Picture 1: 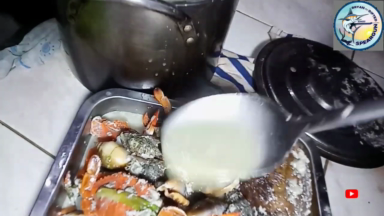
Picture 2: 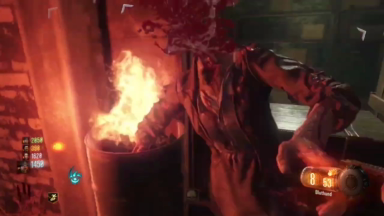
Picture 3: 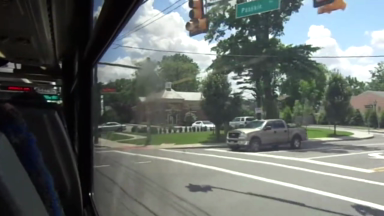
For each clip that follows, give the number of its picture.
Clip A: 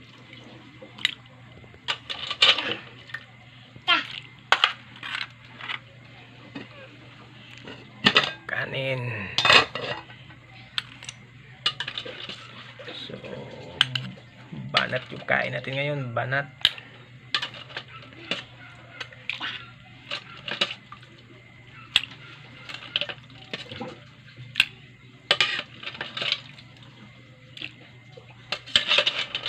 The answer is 1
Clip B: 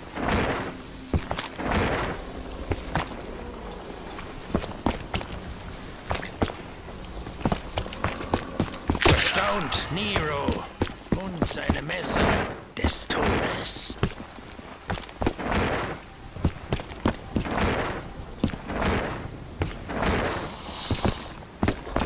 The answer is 2